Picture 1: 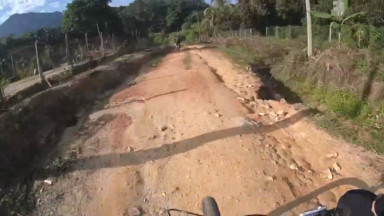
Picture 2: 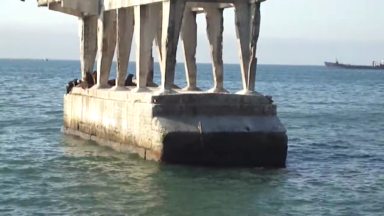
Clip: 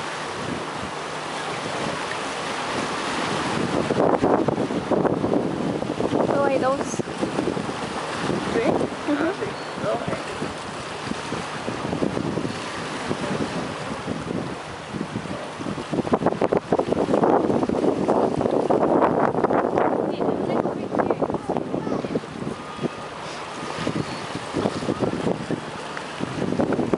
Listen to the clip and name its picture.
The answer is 2